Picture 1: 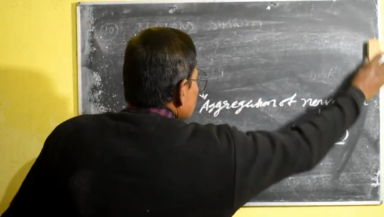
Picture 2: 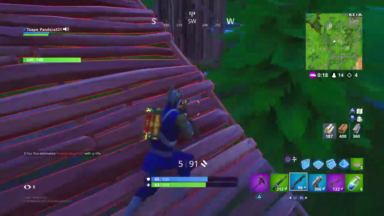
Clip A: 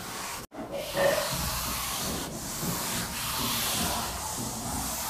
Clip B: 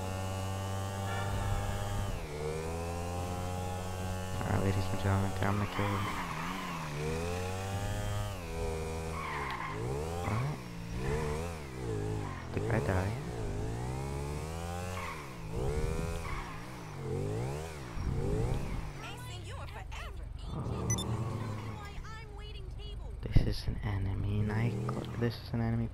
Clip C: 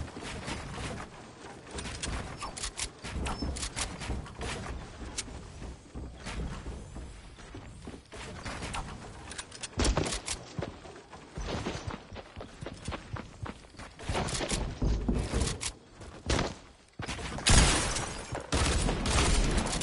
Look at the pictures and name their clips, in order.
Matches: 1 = A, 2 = C